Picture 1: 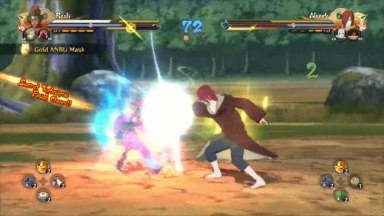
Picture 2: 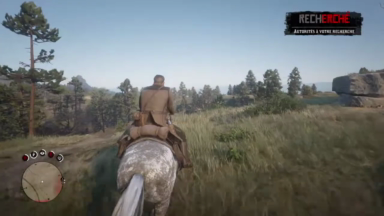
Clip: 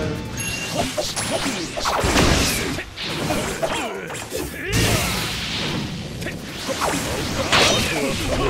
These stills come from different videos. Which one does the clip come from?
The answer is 1